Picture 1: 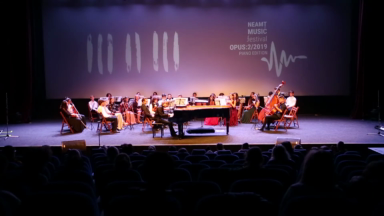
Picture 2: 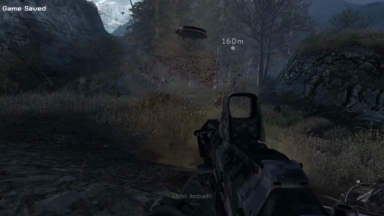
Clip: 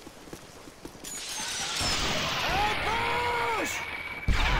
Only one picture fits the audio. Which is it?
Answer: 2